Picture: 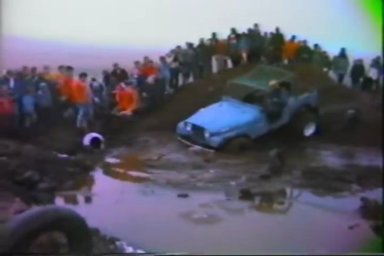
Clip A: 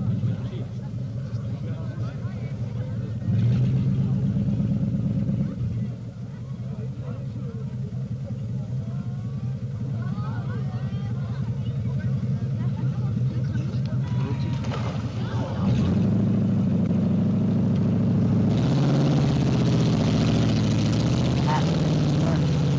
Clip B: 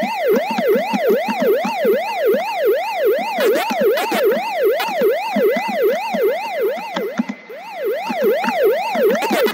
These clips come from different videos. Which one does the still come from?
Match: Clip A